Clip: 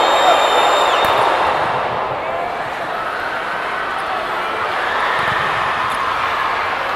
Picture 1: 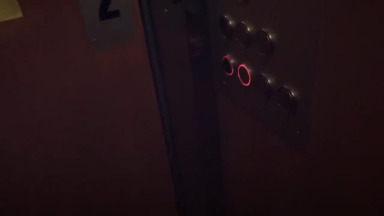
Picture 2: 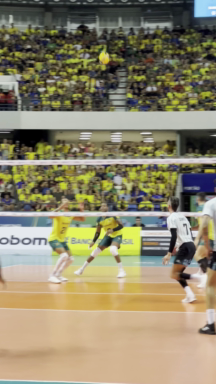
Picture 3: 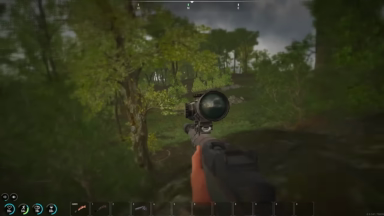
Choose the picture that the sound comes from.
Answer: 2